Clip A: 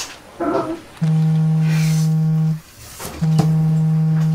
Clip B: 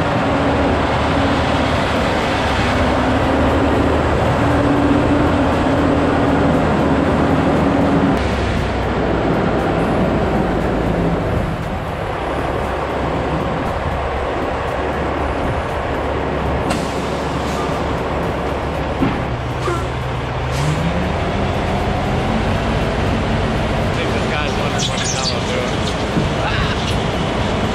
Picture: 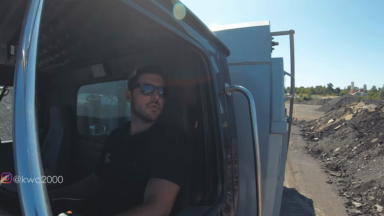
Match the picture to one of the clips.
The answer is B